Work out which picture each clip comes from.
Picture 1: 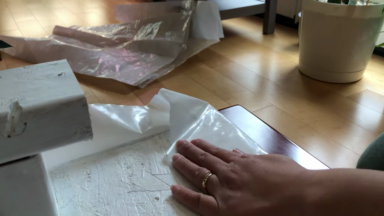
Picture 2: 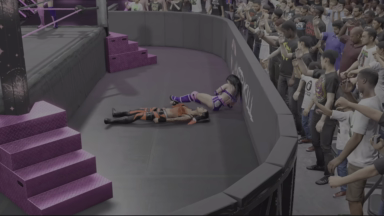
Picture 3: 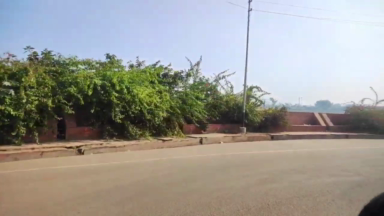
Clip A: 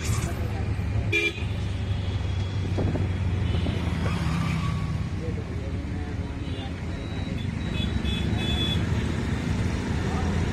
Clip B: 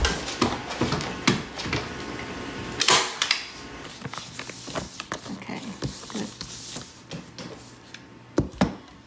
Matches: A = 3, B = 1